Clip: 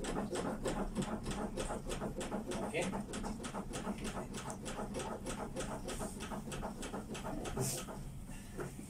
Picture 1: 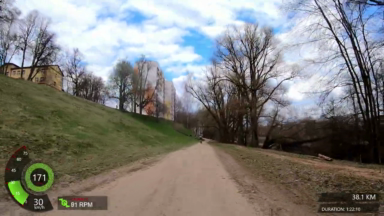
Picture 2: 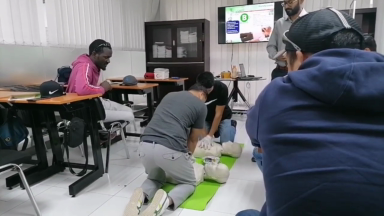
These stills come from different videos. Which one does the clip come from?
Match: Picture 2